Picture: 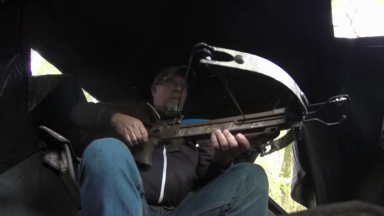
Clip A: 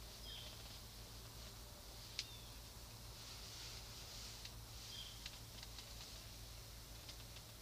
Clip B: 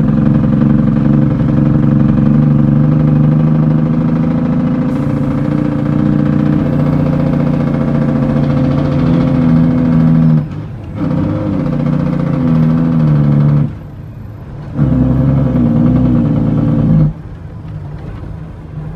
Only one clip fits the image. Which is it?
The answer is A